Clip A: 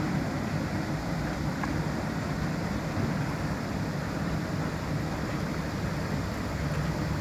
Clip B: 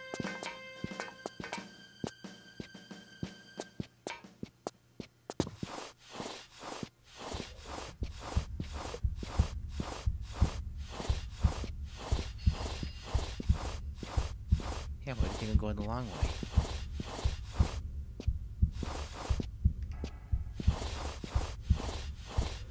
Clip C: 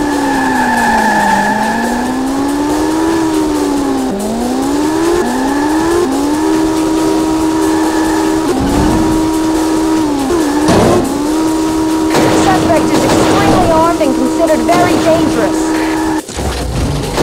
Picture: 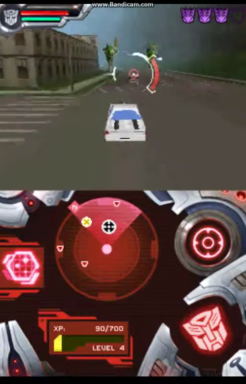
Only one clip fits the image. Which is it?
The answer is C